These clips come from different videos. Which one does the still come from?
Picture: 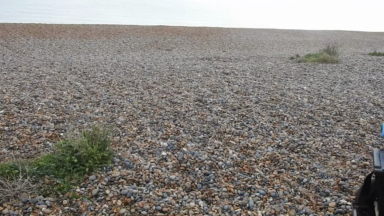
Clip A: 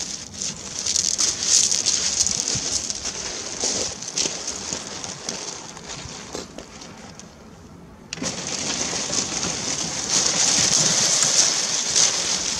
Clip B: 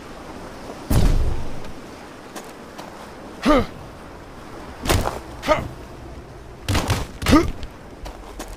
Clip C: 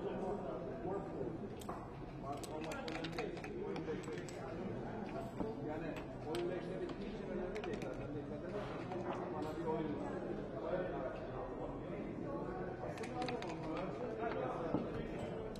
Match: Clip A